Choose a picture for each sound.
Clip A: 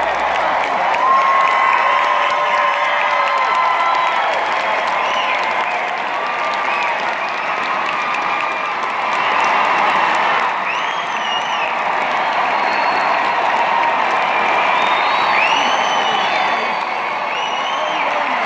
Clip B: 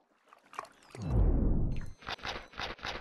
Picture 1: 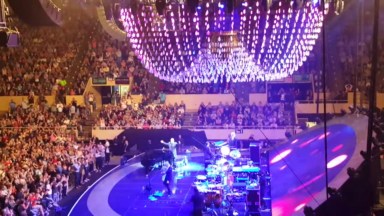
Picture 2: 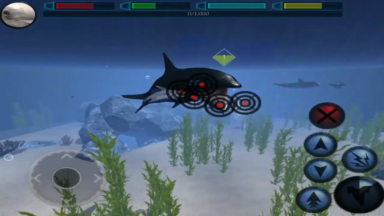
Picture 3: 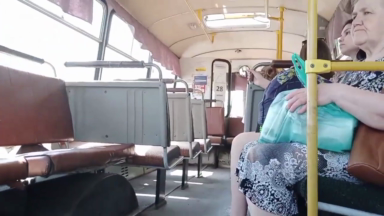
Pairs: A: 1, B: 2